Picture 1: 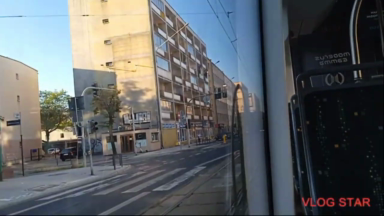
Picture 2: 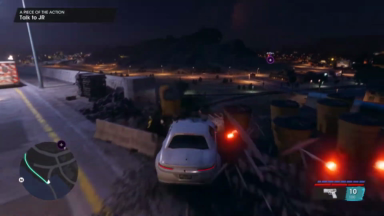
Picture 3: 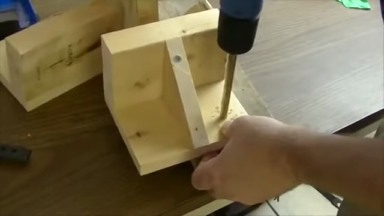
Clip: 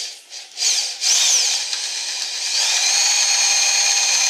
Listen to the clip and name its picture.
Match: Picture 3